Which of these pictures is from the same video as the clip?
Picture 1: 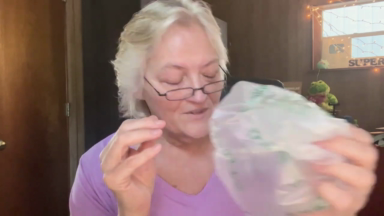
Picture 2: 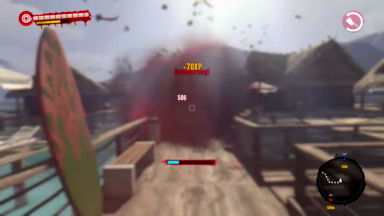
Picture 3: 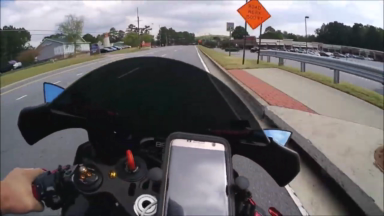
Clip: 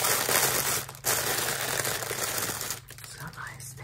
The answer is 1